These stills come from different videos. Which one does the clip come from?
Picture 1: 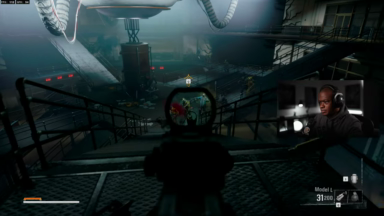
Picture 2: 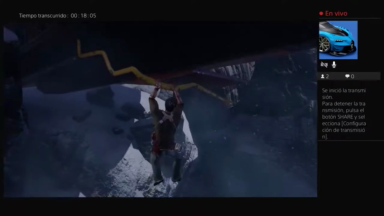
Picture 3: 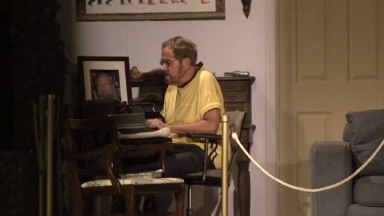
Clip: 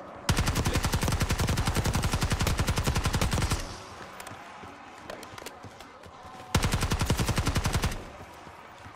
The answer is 1